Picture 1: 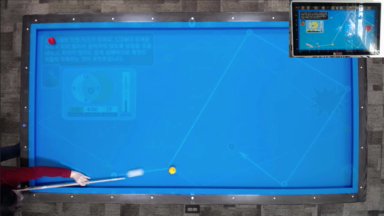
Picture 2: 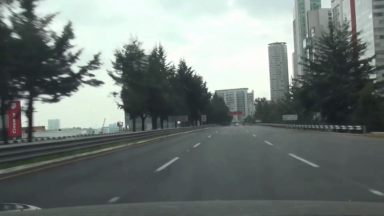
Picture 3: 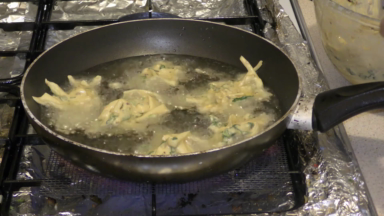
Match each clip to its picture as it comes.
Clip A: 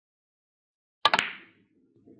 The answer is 1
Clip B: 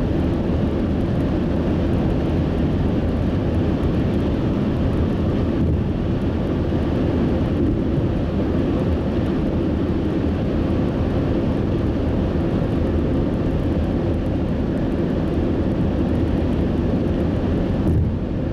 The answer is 2